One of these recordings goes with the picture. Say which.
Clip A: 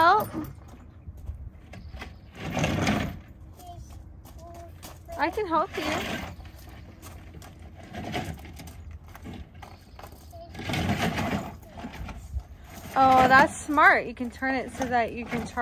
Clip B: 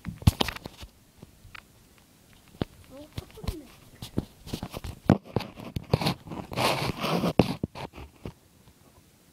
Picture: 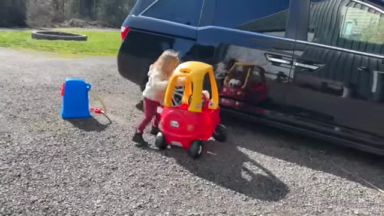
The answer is A